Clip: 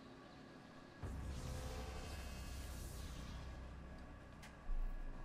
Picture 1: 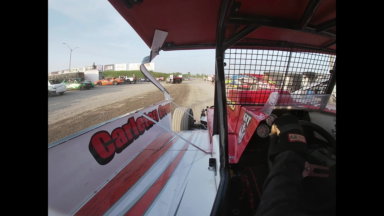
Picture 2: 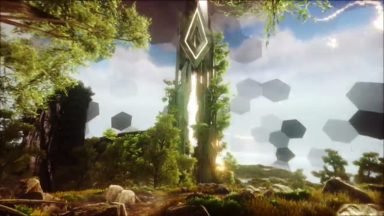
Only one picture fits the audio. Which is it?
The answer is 2